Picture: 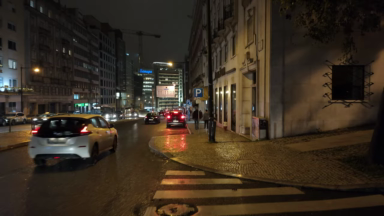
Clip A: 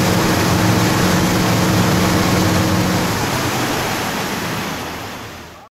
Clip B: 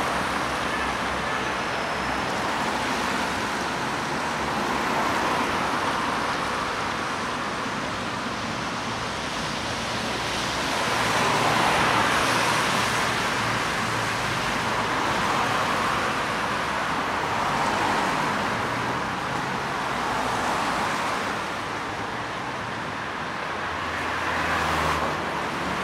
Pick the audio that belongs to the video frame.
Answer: B